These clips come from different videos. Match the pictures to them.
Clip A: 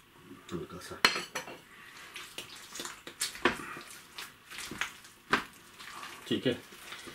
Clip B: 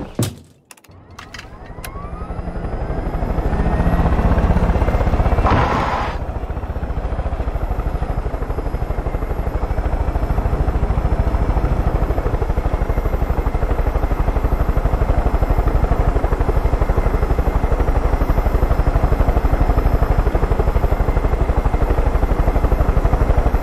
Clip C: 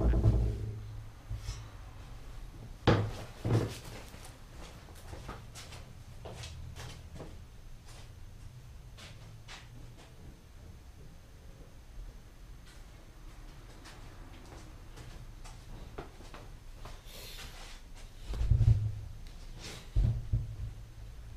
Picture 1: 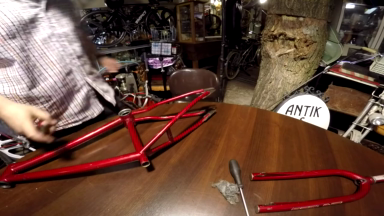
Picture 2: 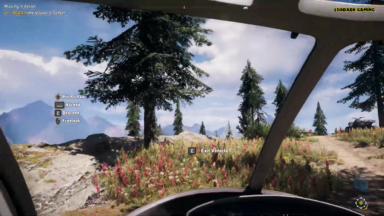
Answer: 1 C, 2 B